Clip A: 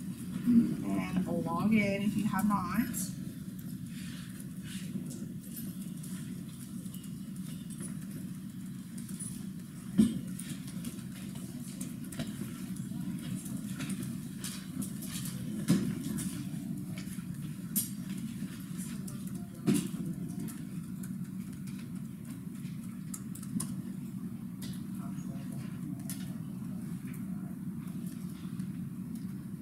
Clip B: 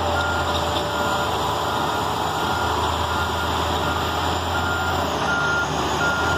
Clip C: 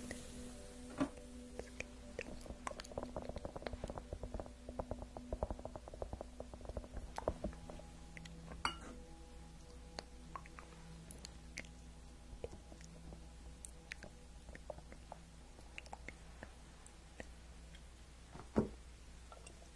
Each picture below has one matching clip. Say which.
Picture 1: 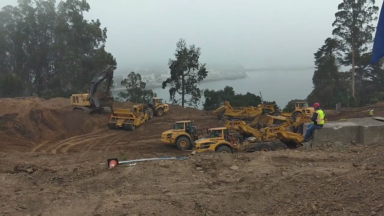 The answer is B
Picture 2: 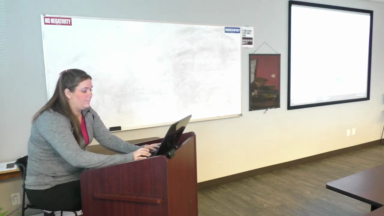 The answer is A